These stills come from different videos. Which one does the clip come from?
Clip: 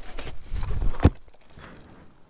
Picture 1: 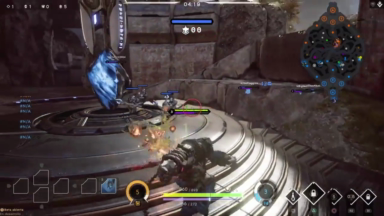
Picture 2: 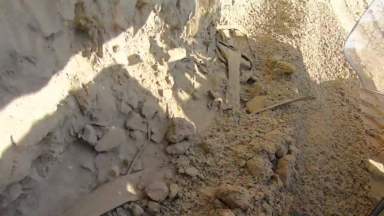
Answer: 2